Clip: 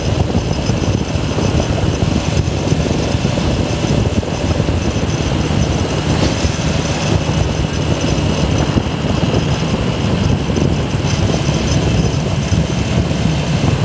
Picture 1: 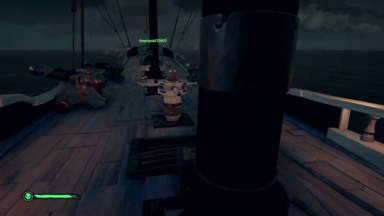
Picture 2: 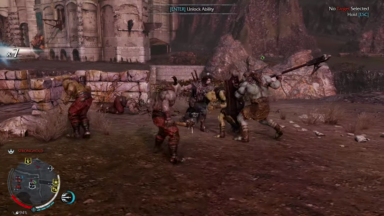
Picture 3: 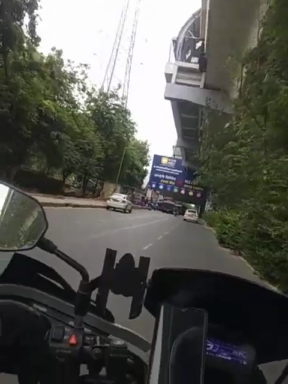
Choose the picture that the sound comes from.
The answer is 3